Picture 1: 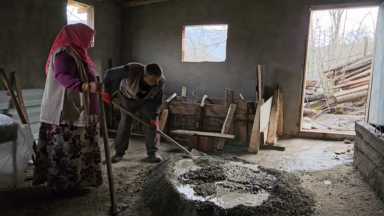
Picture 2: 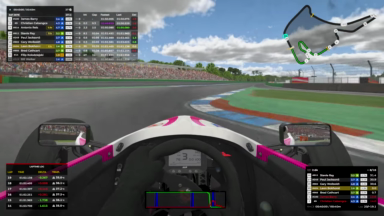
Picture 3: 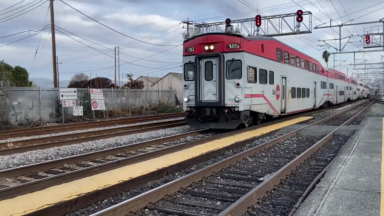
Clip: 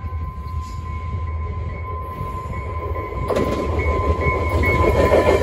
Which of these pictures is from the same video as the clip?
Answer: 3